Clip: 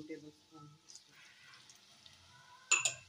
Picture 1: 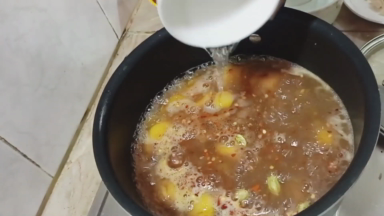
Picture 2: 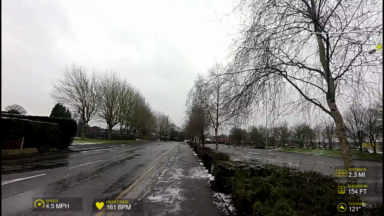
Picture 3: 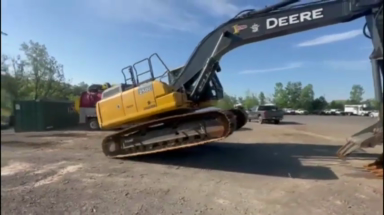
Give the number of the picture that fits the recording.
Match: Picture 1